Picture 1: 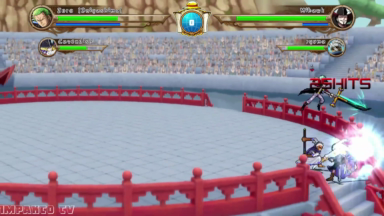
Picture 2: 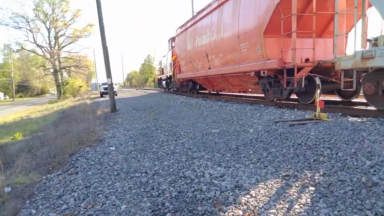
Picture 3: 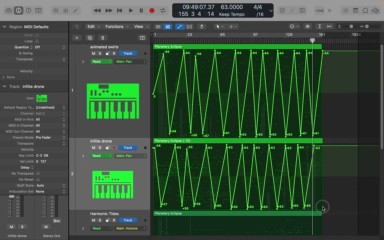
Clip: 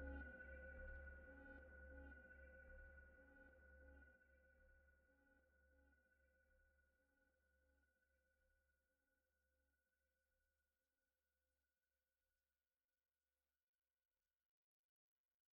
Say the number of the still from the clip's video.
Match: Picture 3